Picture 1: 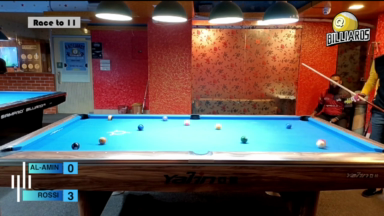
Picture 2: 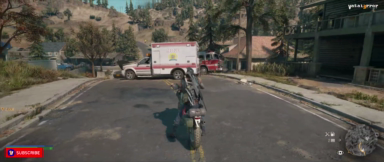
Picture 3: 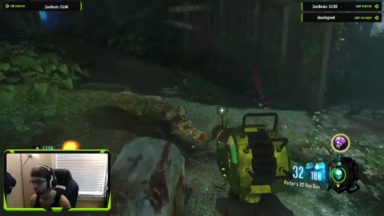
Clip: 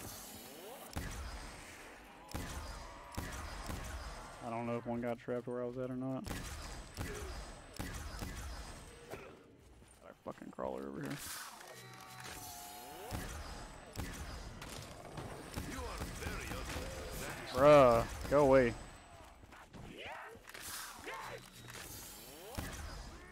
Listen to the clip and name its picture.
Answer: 3